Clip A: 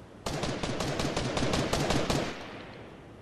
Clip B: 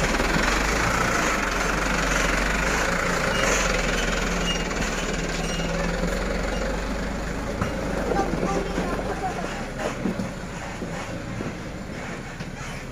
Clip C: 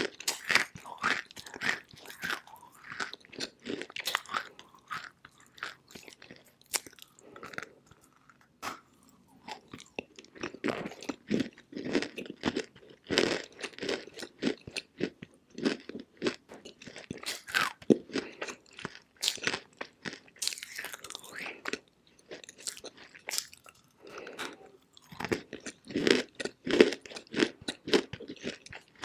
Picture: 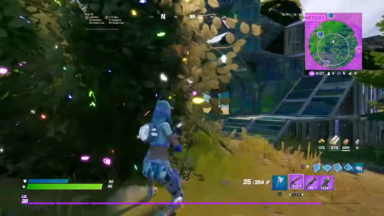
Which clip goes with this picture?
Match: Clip A